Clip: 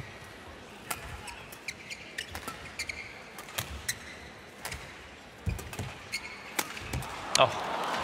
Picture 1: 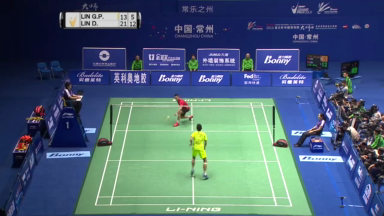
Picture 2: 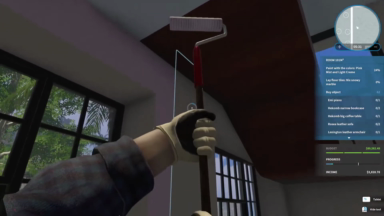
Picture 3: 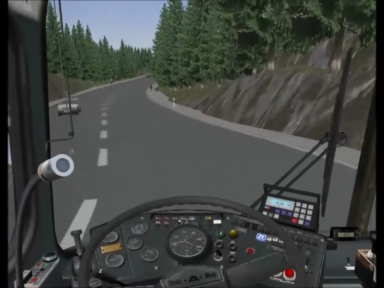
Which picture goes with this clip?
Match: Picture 1